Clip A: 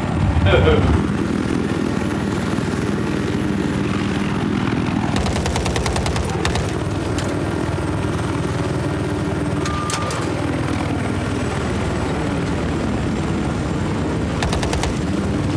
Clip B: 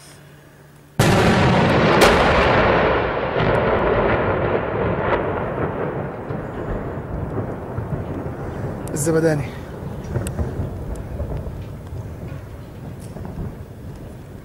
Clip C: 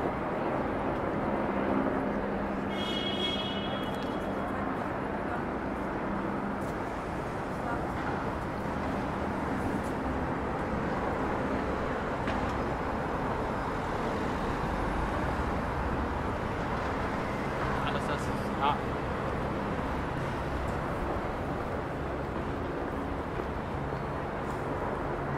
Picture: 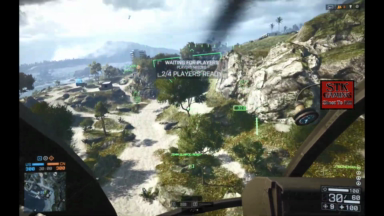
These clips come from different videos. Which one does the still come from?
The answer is A